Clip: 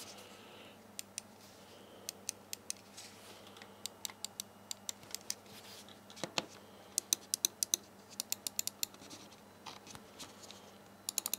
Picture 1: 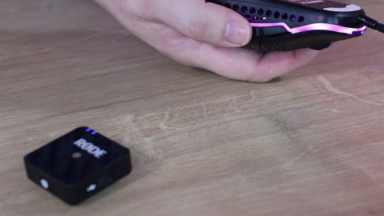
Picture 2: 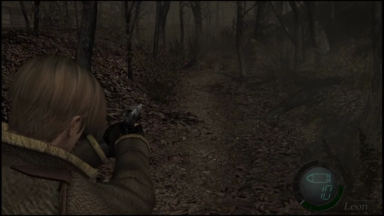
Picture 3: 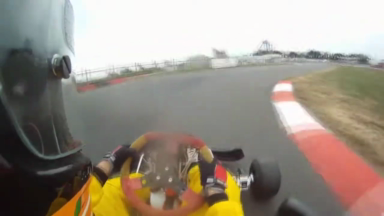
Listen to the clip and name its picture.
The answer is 1